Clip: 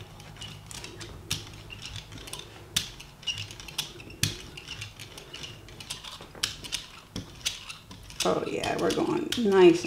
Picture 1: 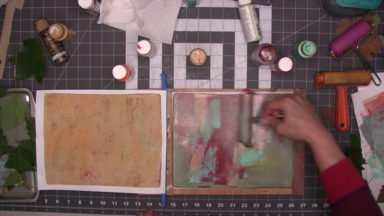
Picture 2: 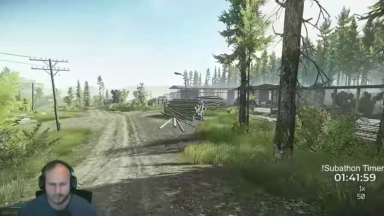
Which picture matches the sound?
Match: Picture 1